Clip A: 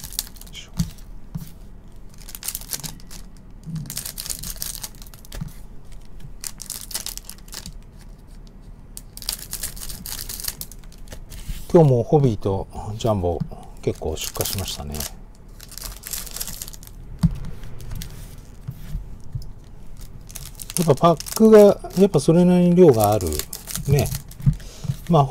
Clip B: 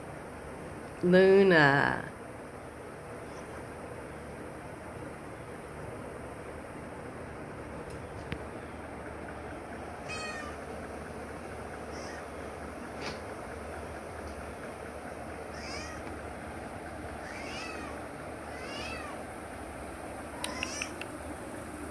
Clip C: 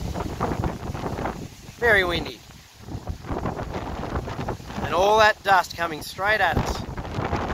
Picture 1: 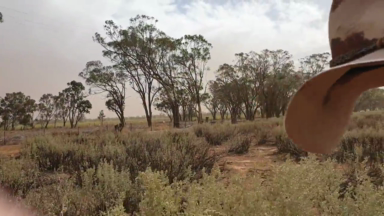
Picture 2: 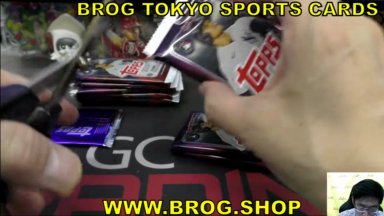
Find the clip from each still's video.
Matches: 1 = C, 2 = A